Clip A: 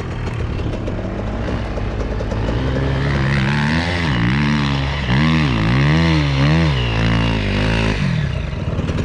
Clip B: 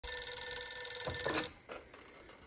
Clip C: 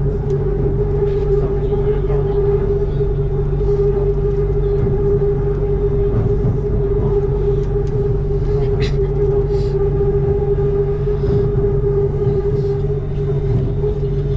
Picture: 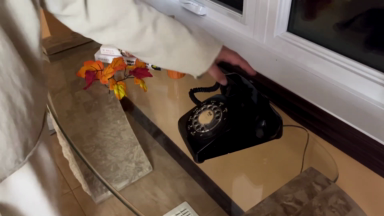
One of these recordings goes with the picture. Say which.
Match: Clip B